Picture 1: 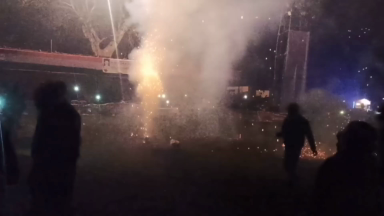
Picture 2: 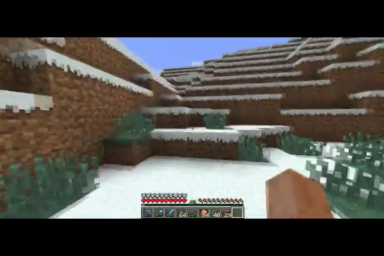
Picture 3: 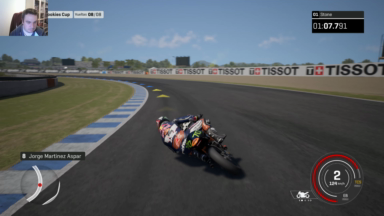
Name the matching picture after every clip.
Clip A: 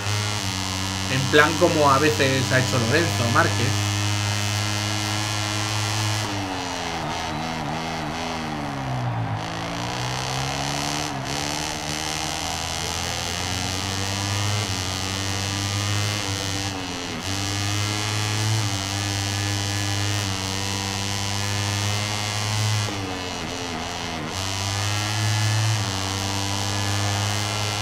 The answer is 3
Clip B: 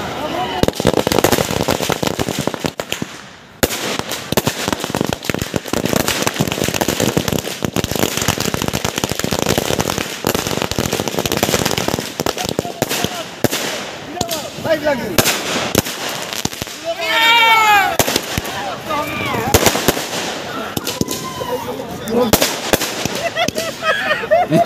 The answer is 1